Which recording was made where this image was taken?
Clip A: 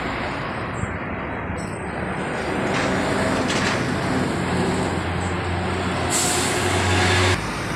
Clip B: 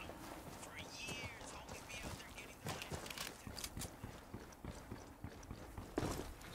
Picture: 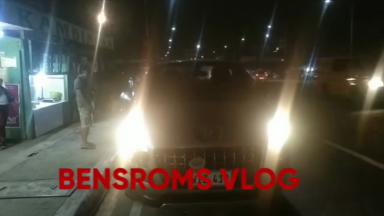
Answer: A